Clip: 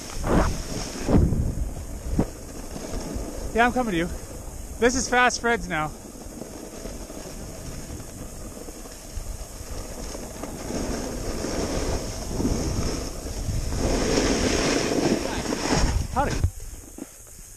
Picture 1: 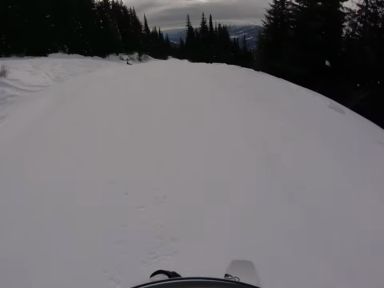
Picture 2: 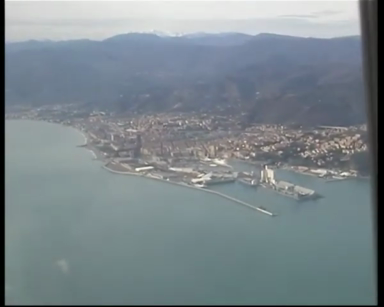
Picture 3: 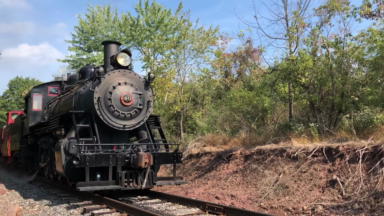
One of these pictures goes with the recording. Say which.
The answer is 1